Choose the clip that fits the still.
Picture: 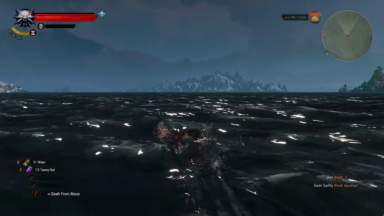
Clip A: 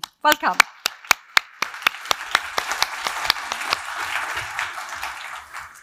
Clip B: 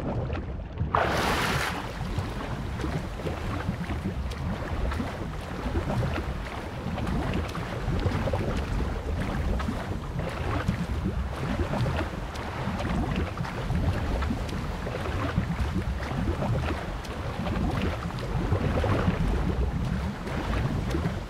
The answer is B